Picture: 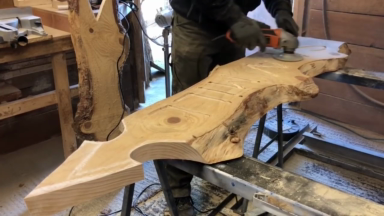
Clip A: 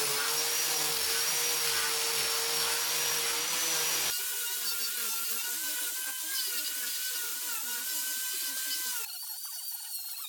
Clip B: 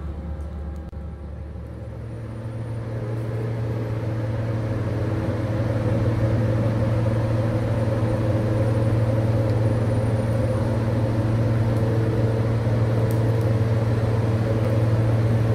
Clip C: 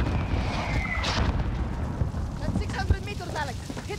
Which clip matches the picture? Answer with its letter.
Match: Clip A